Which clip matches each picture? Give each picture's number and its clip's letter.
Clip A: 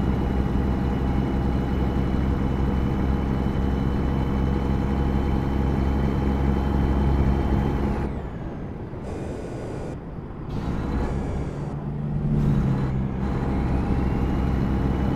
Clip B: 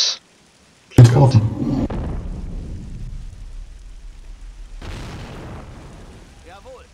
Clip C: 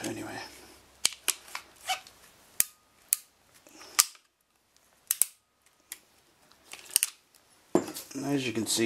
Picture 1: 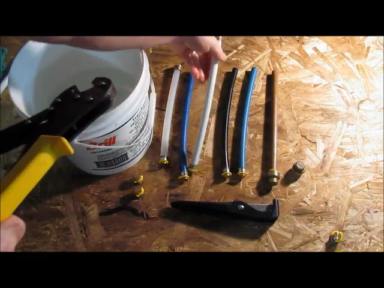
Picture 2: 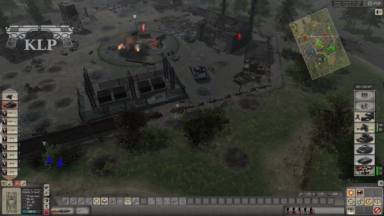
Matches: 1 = C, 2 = B